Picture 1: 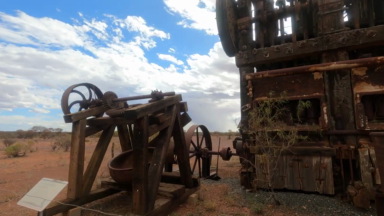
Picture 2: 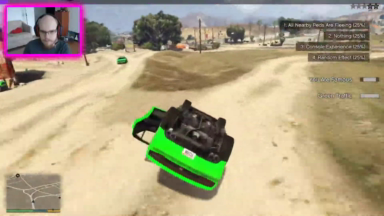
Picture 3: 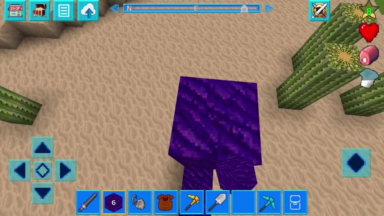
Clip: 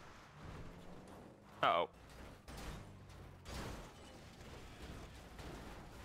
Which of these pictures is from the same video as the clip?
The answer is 2